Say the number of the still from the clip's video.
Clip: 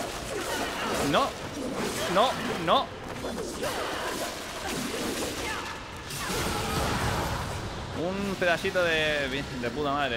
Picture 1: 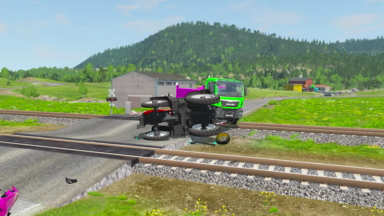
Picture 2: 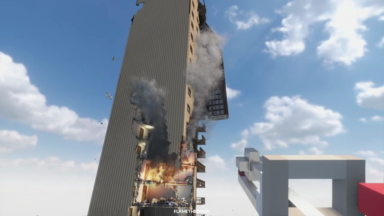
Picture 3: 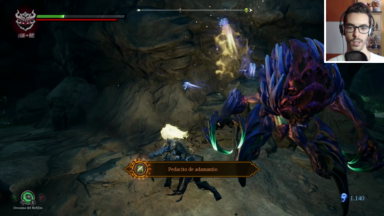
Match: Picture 3